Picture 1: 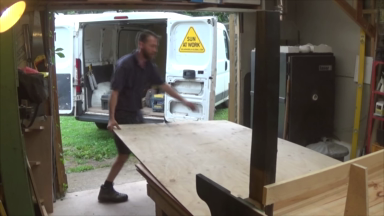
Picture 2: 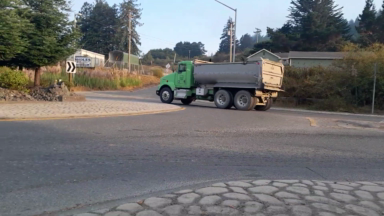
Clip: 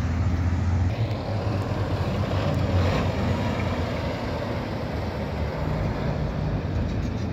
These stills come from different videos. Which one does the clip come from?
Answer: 2